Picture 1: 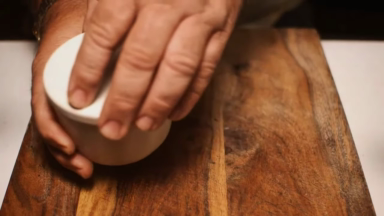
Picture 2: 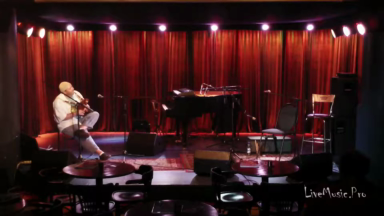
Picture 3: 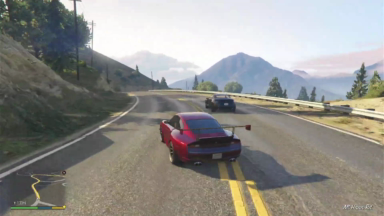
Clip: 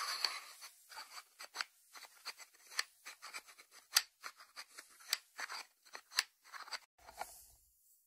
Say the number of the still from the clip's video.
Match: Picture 1